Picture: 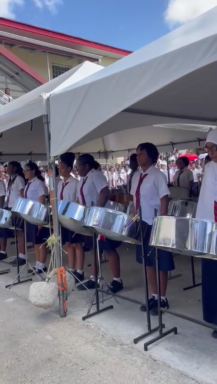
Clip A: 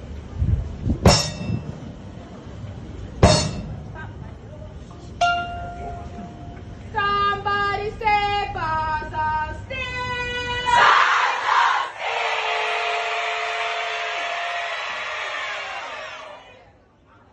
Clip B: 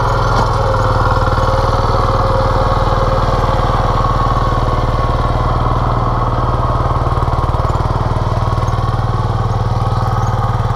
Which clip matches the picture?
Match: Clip A